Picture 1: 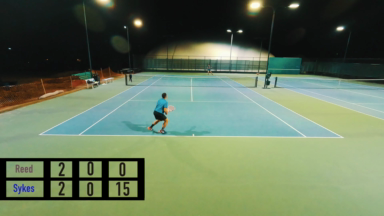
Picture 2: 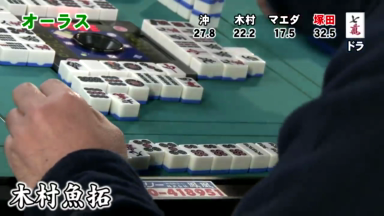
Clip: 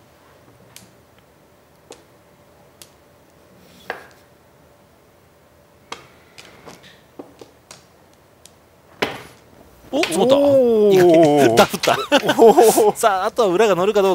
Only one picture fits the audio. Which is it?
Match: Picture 2